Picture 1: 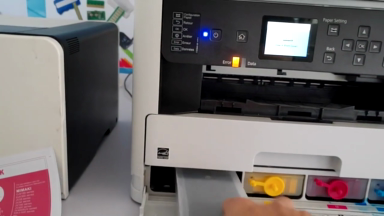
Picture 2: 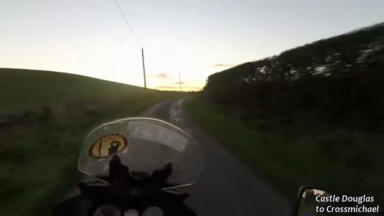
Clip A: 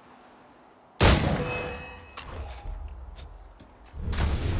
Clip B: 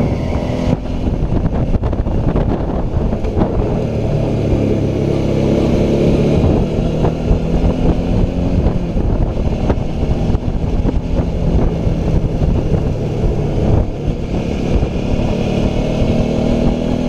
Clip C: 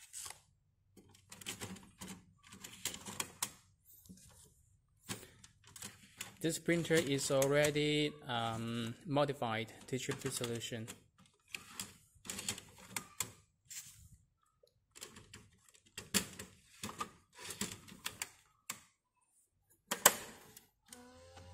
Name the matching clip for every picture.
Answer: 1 C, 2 B